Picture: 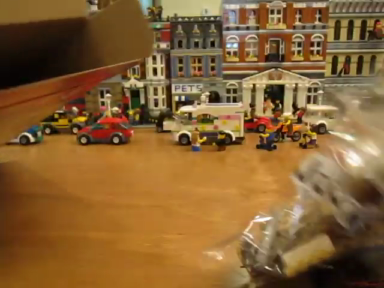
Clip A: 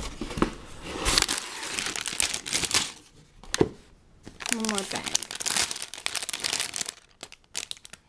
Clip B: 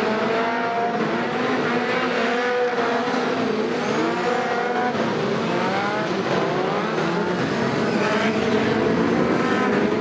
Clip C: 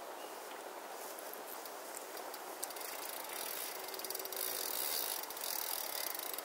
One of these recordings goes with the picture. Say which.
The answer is A